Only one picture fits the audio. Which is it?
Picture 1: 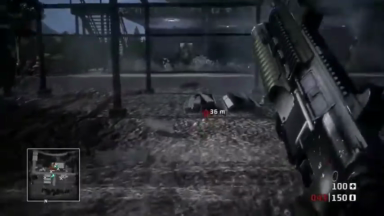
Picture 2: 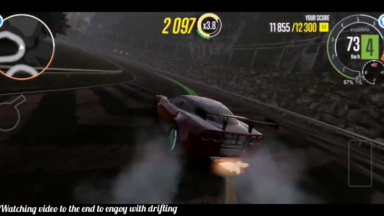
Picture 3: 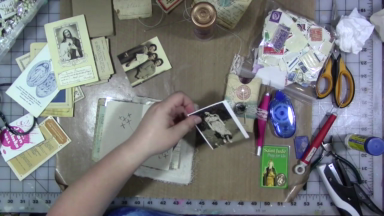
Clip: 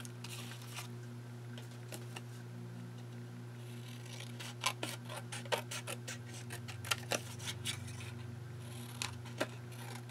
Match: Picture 3